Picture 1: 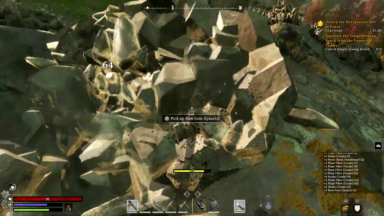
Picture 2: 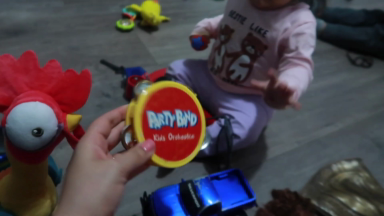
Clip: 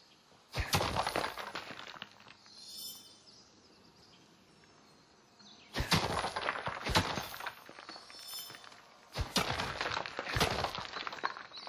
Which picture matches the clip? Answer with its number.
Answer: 1